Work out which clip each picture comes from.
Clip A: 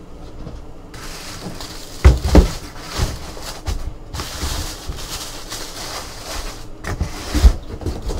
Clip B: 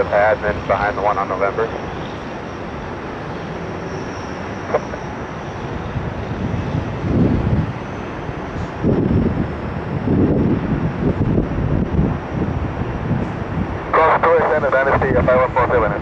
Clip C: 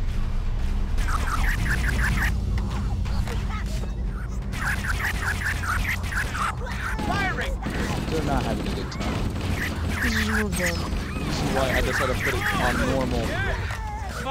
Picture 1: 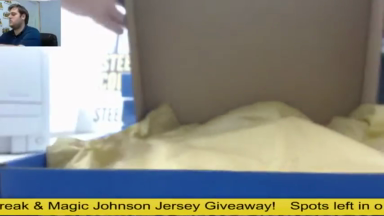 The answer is A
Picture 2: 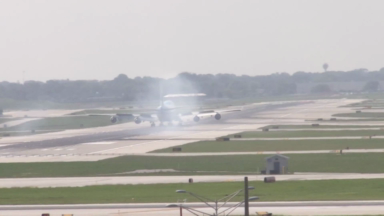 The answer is B